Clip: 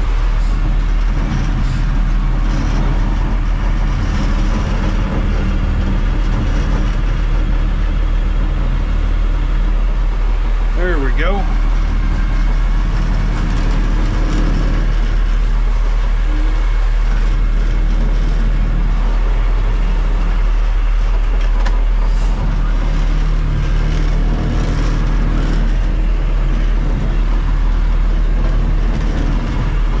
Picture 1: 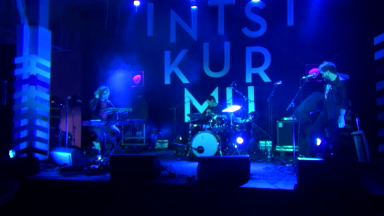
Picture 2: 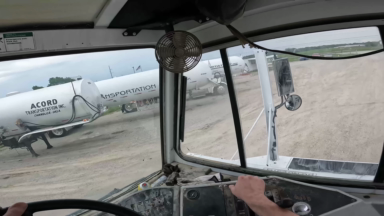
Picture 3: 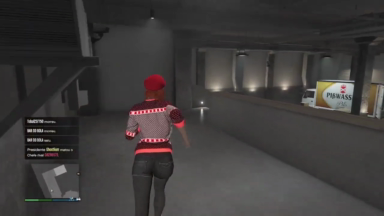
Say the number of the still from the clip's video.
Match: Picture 2